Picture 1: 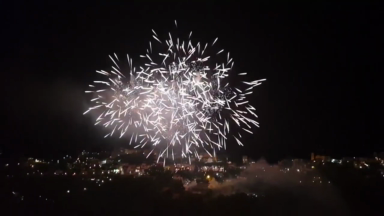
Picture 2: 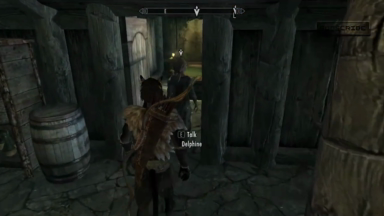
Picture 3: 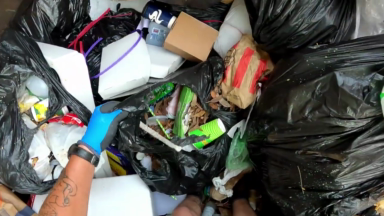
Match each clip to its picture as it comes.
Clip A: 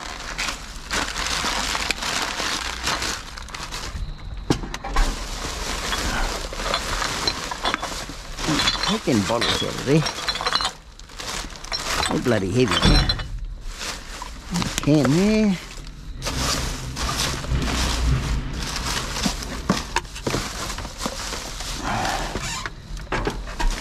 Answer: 3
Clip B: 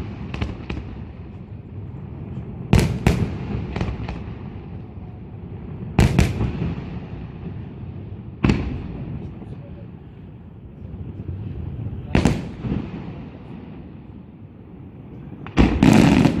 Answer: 1